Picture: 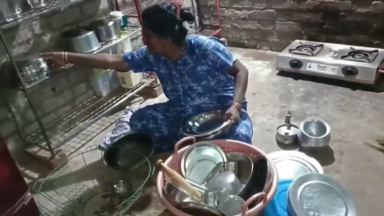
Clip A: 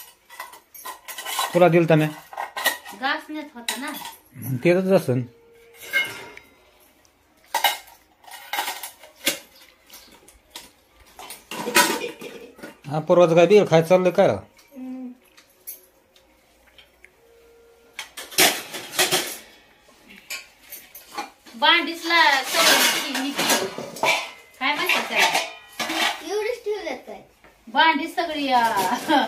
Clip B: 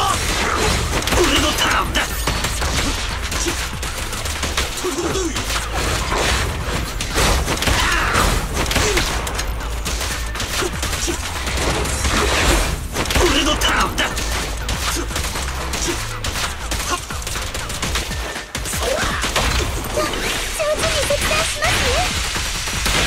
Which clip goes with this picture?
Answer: A